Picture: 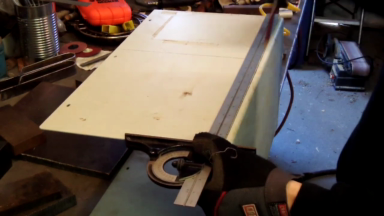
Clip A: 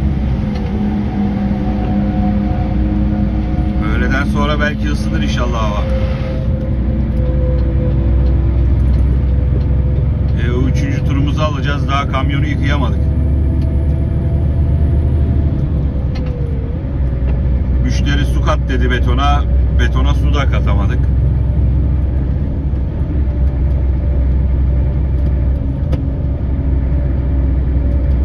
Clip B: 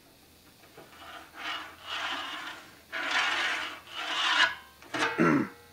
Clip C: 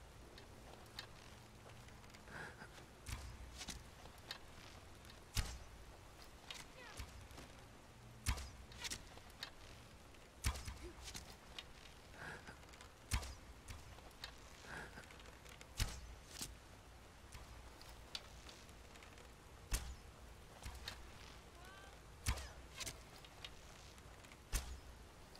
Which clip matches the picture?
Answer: B